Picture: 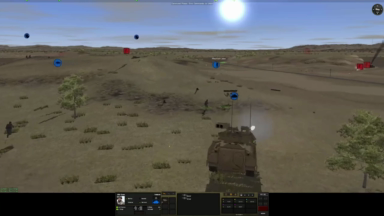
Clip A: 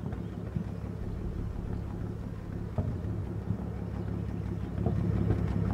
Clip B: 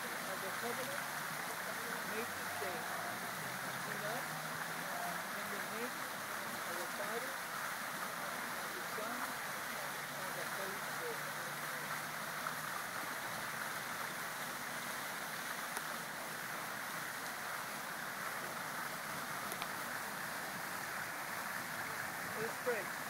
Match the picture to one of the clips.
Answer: A